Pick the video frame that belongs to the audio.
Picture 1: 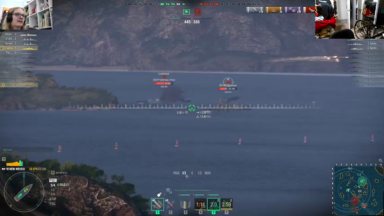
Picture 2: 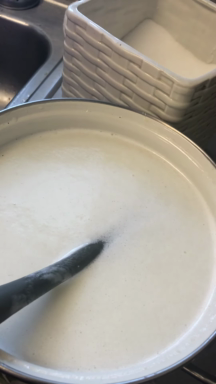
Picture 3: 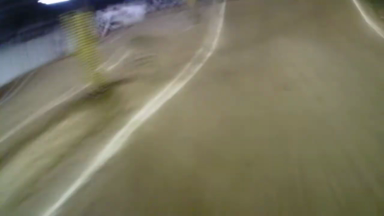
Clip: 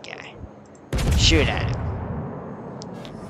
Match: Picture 1